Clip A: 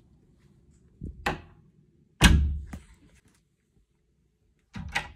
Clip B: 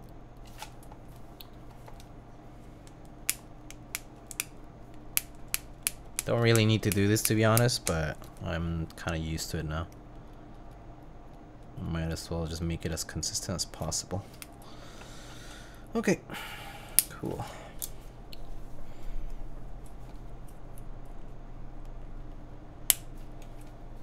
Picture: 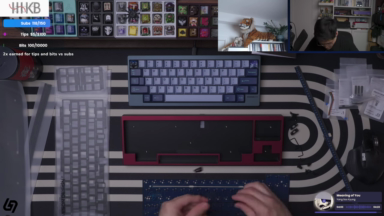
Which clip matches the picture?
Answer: B